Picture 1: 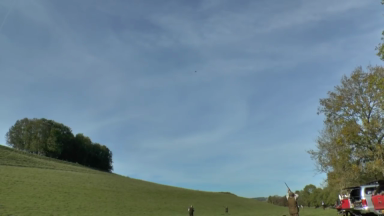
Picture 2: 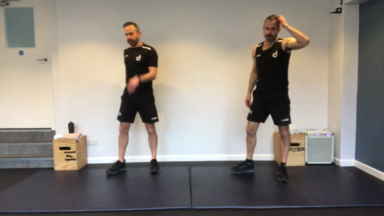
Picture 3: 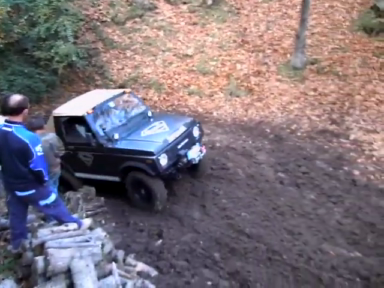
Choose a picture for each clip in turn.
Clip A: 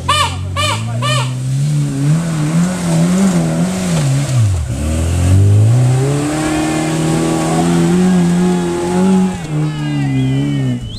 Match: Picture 3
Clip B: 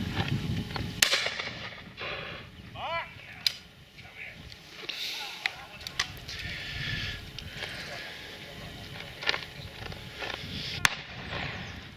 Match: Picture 1